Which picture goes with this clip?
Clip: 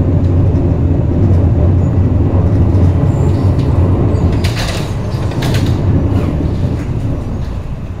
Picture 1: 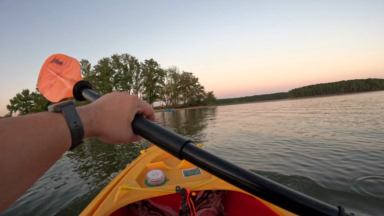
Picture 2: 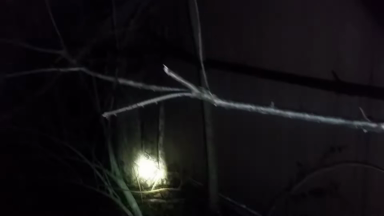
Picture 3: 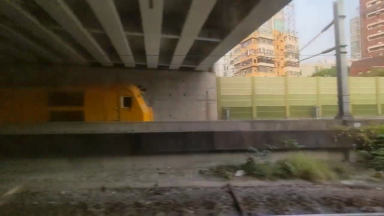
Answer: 3